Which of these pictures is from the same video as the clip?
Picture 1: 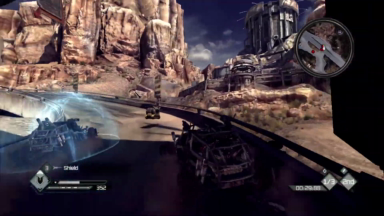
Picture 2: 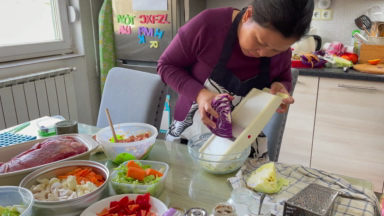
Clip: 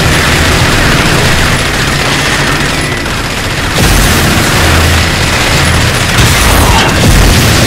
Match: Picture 1